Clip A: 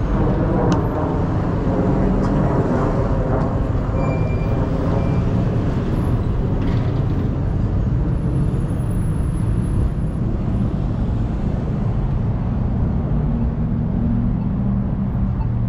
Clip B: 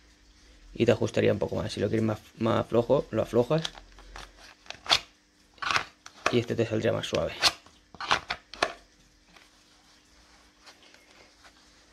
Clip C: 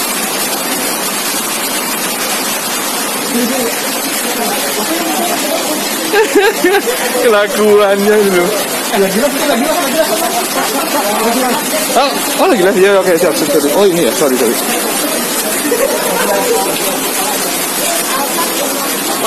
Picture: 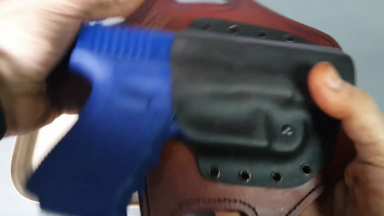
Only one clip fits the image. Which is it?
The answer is B